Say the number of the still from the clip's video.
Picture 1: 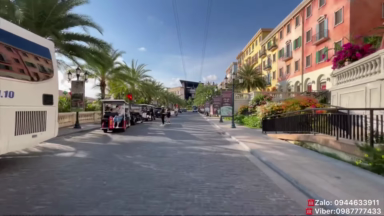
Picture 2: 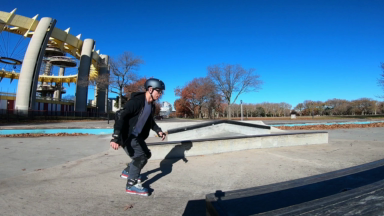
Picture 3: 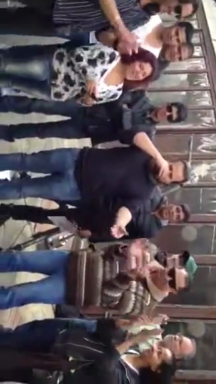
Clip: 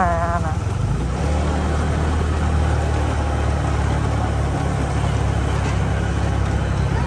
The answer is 1